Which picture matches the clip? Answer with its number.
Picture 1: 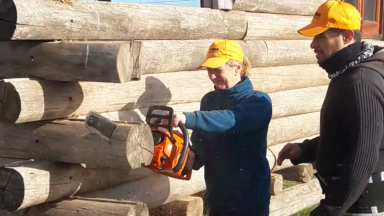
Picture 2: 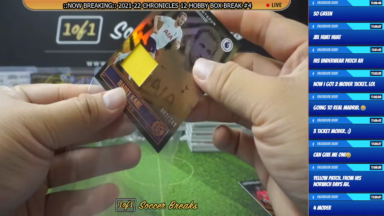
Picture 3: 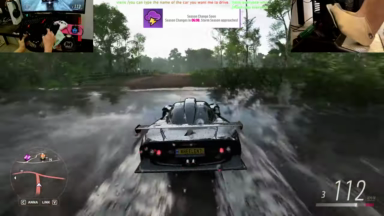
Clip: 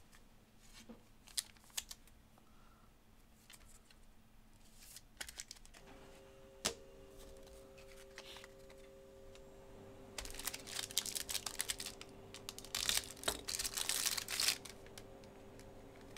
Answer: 2